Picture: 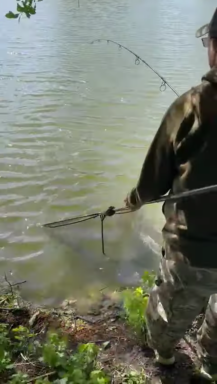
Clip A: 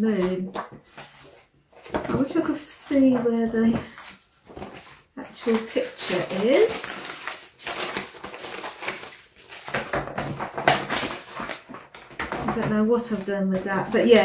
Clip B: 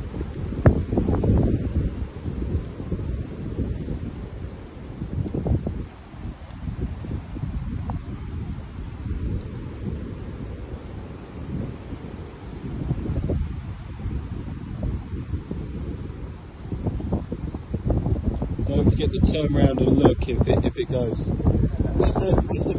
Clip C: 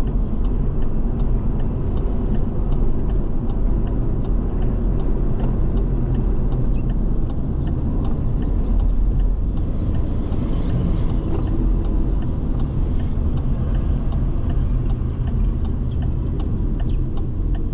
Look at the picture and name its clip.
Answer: B